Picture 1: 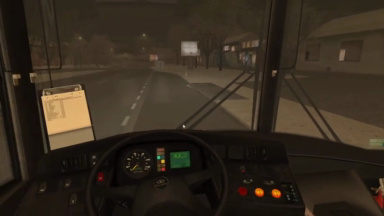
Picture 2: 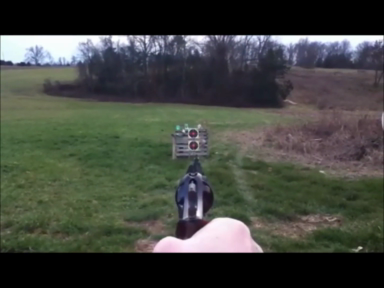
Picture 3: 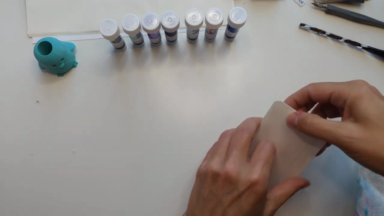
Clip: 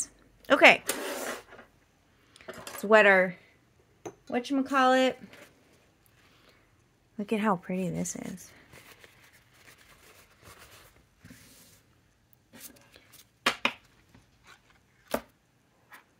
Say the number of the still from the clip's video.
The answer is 3